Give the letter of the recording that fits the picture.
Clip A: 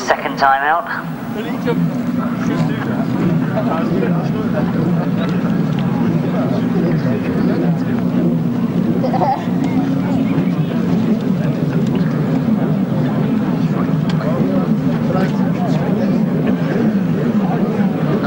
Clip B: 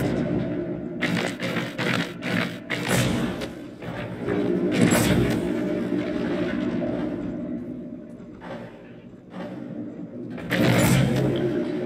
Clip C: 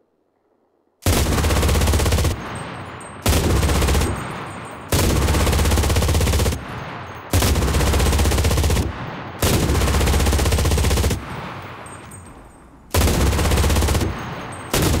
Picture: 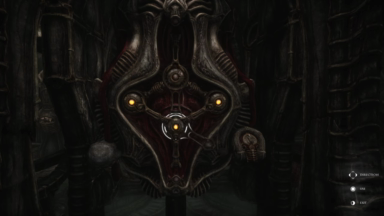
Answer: B